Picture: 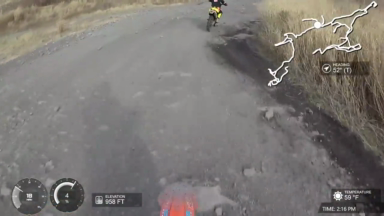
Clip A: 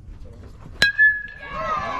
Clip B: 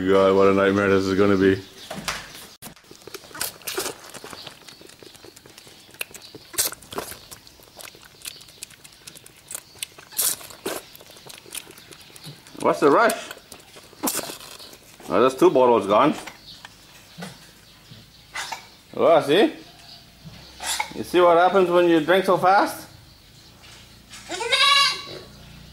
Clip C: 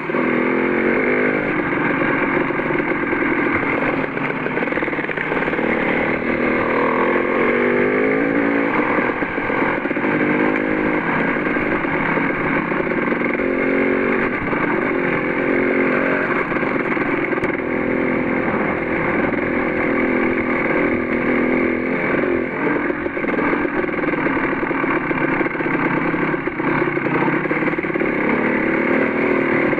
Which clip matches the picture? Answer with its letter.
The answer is C